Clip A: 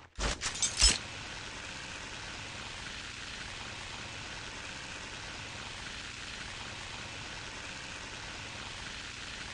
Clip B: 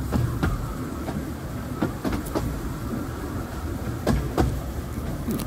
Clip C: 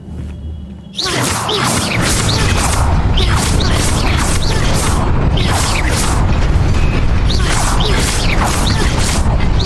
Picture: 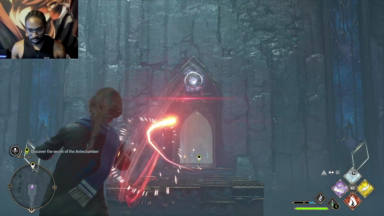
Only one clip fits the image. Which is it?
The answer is C